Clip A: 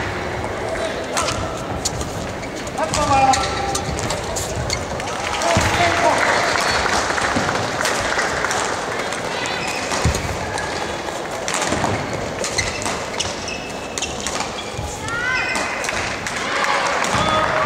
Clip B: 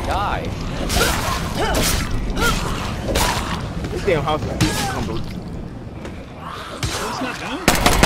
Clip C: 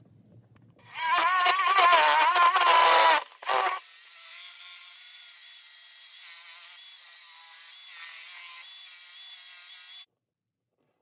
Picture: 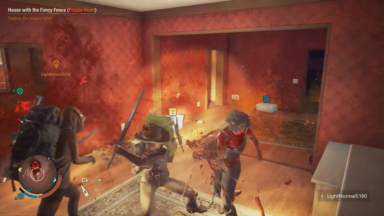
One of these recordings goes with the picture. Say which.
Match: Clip B